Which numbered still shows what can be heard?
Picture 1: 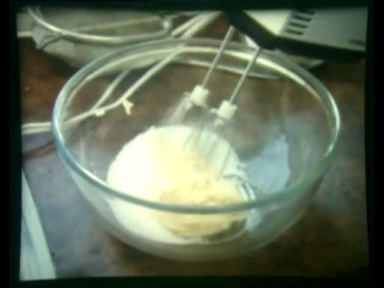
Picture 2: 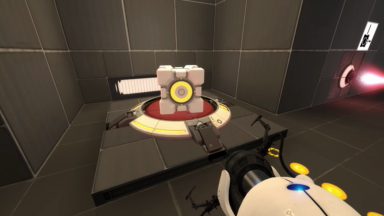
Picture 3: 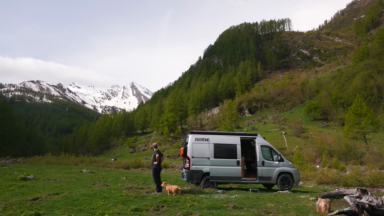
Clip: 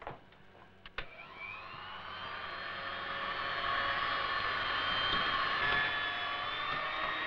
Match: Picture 1